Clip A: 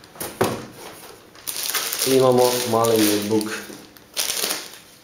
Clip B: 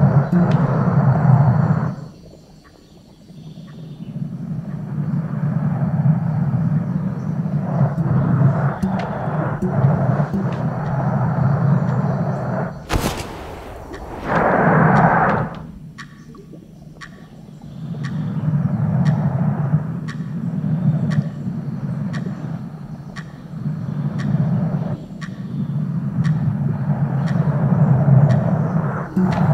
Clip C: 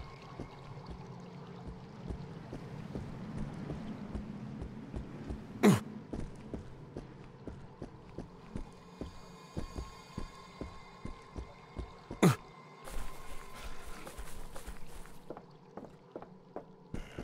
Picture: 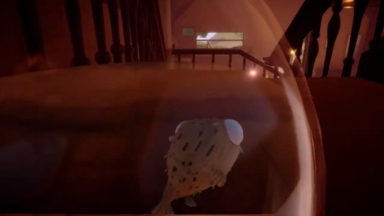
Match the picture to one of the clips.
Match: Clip B